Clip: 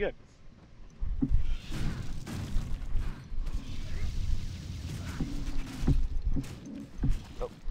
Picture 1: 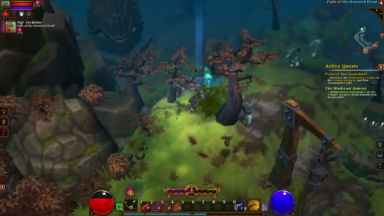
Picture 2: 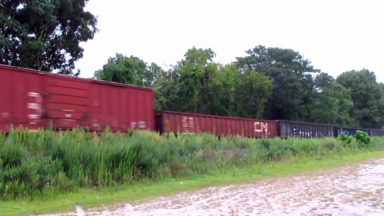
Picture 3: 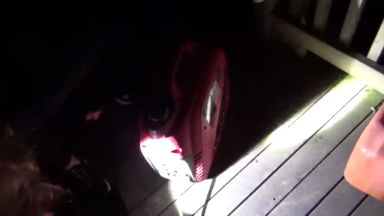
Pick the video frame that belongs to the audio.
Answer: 1